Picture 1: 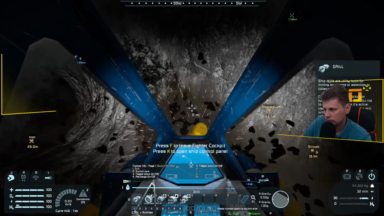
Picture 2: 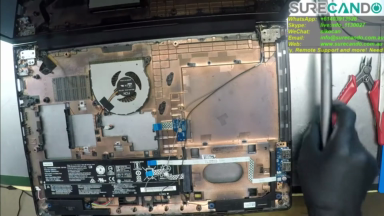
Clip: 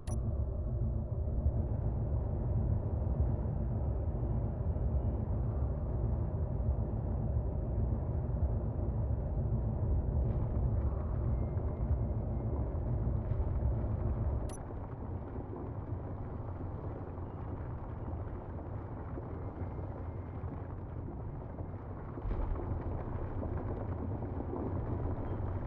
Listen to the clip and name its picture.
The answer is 1